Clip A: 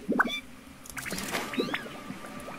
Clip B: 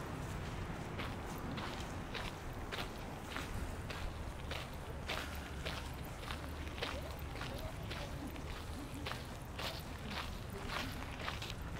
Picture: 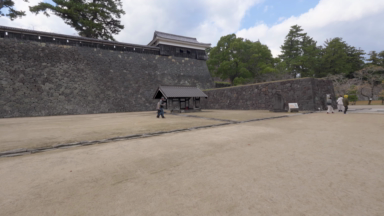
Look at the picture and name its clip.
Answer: B